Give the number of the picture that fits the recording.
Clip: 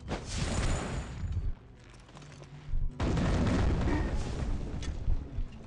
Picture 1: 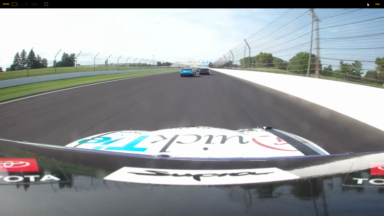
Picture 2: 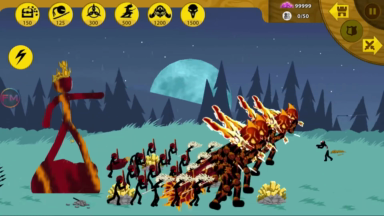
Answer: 2